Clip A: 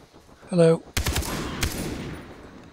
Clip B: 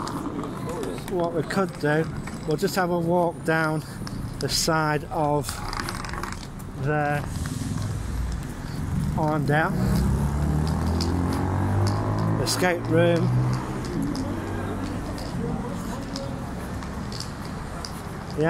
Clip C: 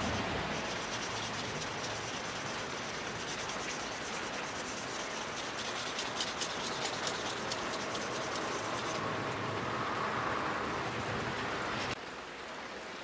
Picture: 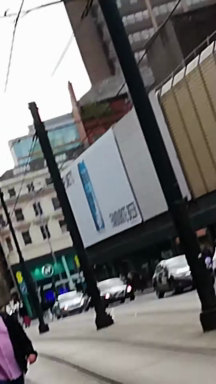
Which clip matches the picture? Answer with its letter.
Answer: B